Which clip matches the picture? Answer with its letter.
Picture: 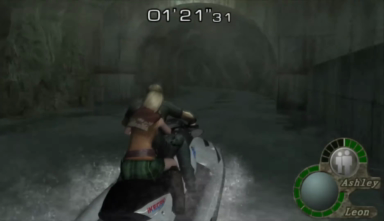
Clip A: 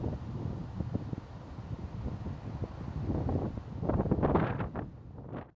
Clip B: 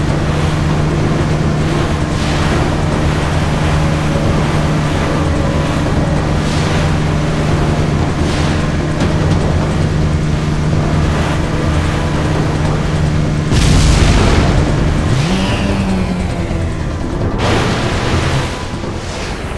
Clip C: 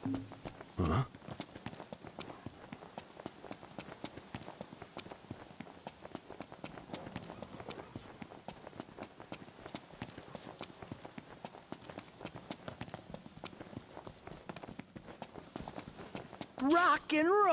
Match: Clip B